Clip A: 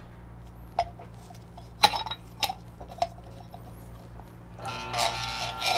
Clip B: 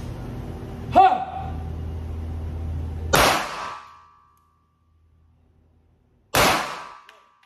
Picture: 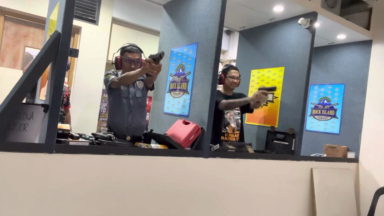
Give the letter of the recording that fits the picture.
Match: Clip B